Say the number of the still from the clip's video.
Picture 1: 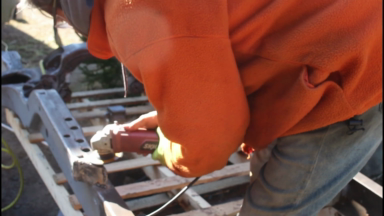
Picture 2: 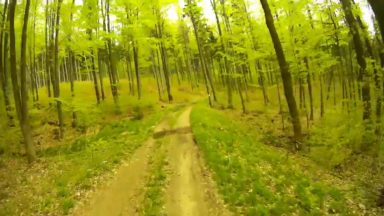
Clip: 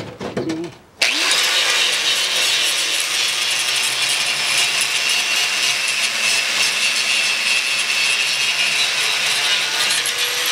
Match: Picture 1